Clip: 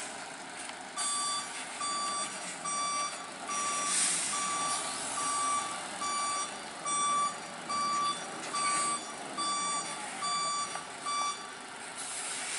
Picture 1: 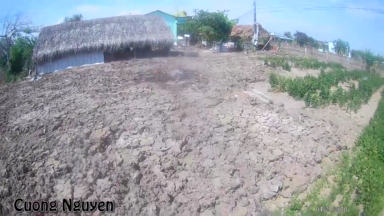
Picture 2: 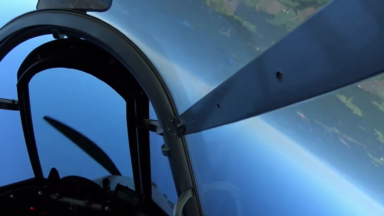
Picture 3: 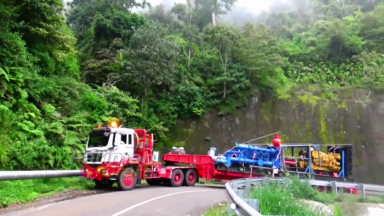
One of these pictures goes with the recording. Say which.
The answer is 3